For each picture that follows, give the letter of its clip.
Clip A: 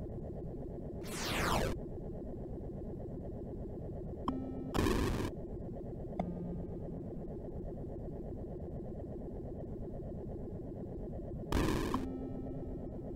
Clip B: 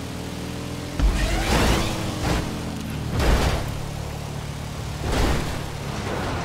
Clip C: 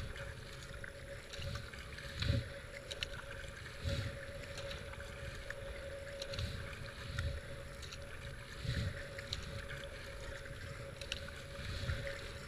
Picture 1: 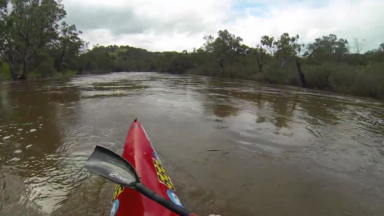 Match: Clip C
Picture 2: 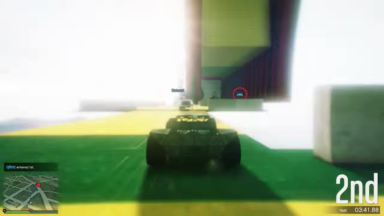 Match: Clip B